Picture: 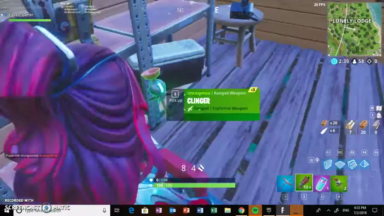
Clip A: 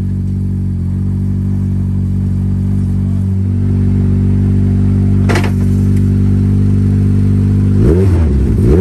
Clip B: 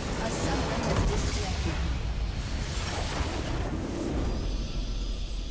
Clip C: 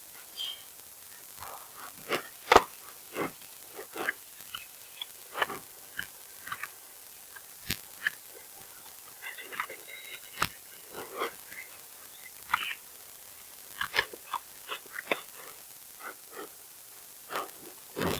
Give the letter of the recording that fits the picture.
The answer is C